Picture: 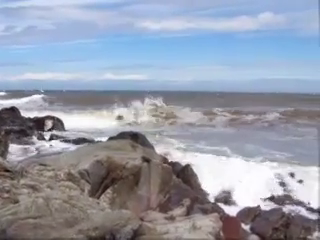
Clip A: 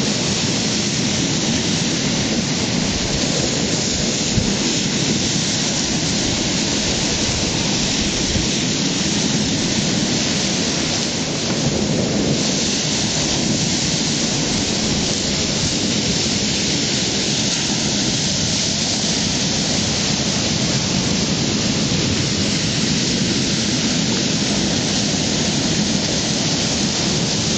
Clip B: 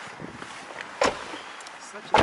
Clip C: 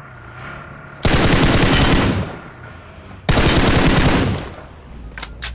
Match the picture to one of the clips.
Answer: A